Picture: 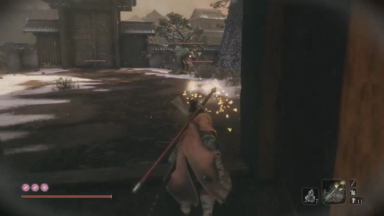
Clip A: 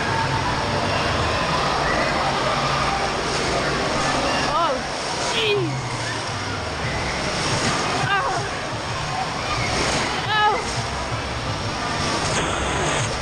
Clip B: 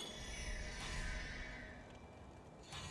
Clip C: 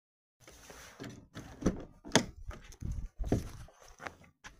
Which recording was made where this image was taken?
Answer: B